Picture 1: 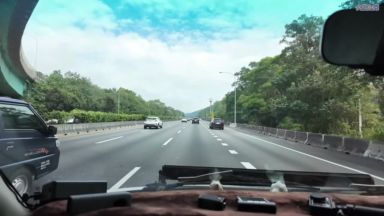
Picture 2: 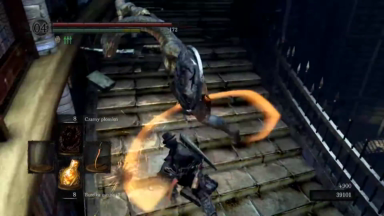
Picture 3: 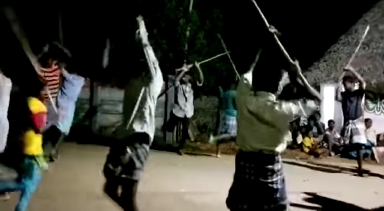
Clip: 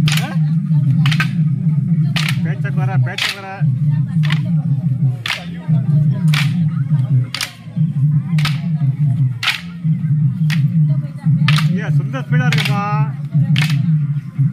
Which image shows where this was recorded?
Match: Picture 3